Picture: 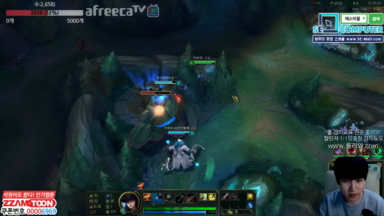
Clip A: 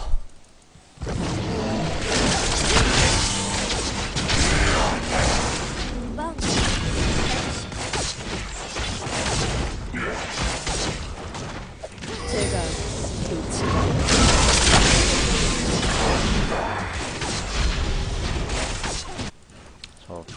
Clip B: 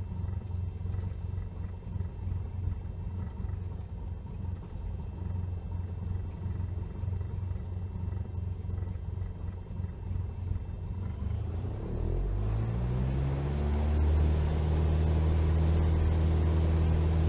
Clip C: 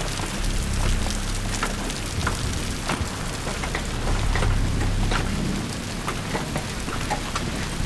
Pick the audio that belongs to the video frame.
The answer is A